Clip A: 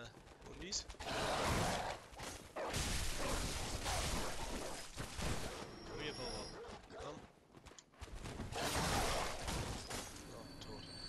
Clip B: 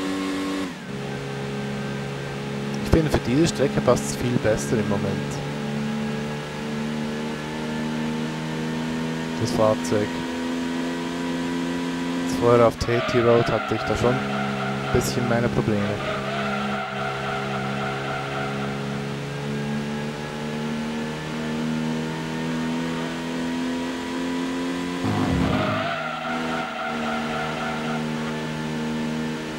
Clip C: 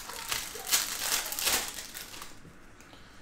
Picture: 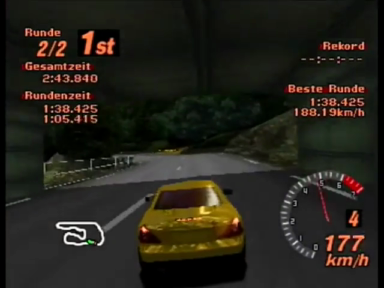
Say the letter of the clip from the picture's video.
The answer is B